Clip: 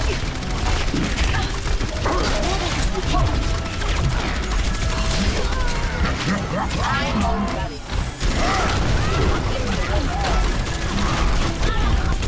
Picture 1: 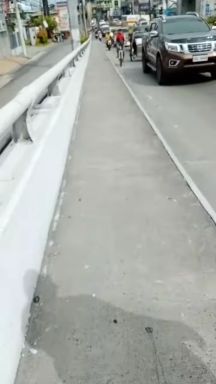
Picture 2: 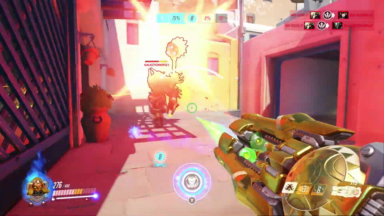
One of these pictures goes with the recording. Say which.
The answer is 2